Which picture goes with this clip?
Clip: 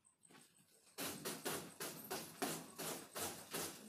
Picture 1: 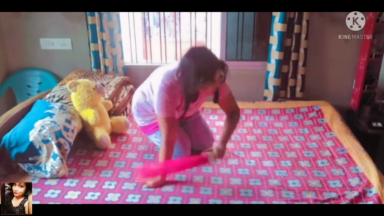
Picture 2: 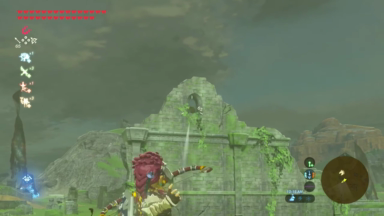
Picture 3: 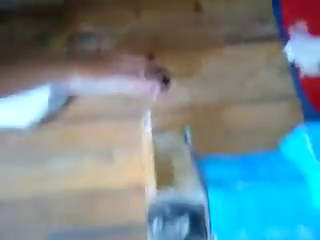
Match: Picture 1